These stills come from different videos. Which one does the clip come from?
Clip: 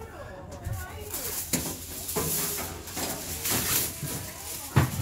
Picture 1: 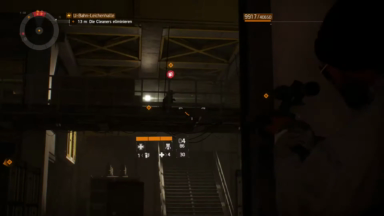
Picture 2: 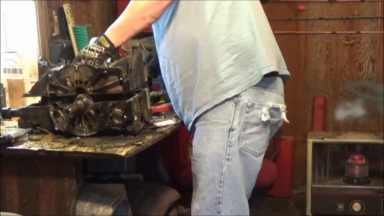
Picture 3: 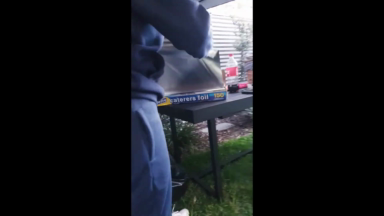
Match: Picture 3